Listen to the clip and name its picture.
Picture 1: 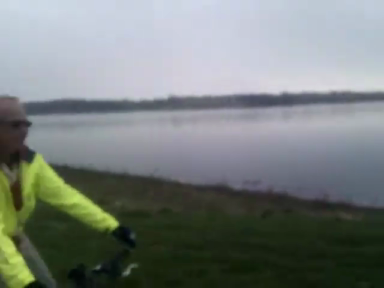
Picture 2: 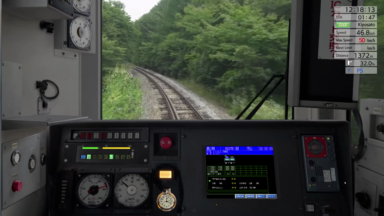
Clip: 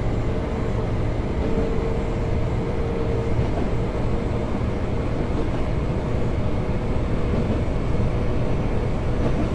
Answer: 2